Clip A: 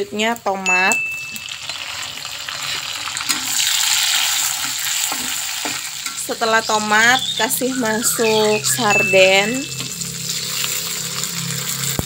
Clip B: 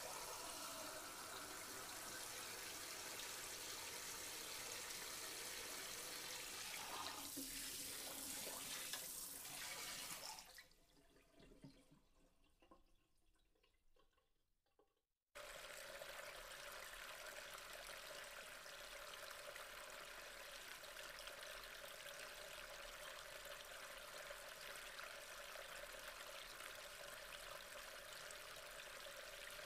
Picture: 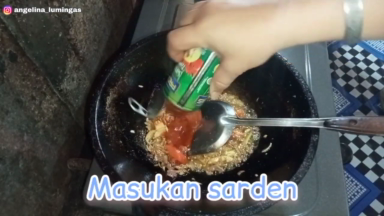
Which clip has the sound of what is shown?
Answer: A